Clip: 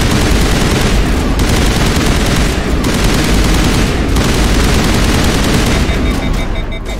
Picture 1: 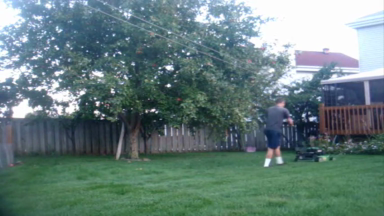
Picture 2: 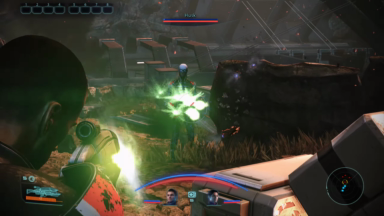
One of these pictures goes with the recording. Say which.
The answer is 2